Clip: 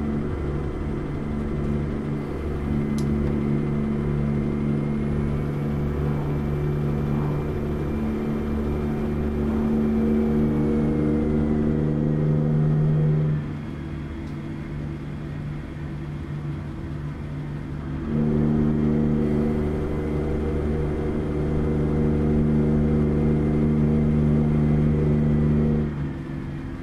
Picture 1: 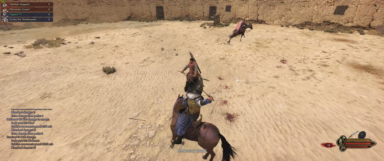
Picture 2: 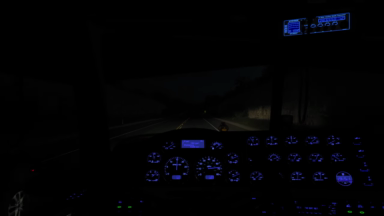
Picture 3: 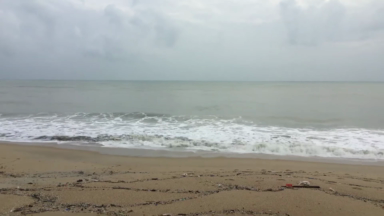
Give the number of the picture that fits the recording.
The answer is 2